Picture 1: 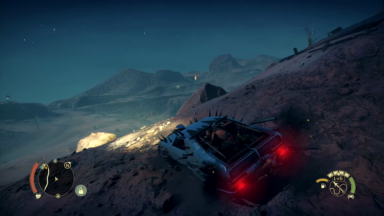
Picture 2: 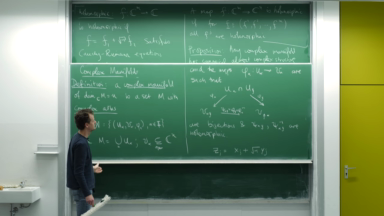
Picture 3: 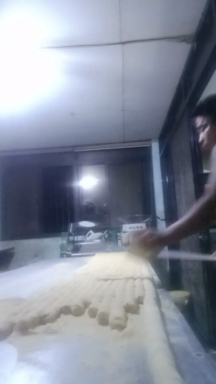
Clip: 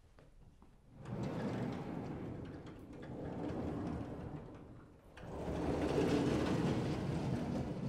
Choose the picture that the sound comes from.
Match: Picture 2